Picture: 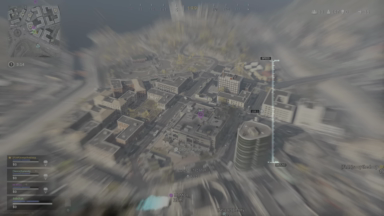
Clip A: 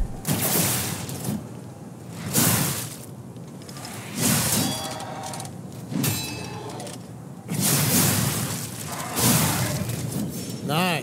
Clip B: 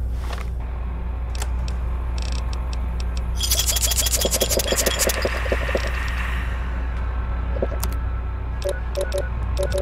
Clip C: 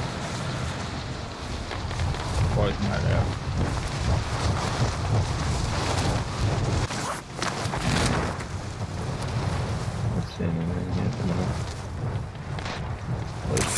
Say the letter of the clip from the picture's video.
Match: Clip C